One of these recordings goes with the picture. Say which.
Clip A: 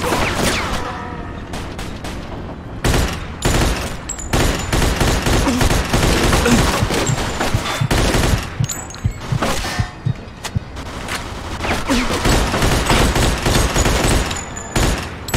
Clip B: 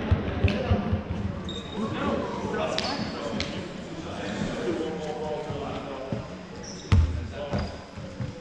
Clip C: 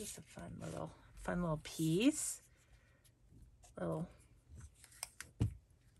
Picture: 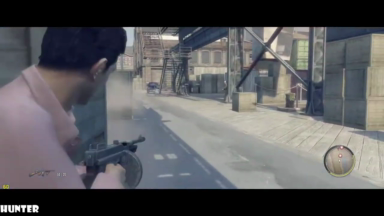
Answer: A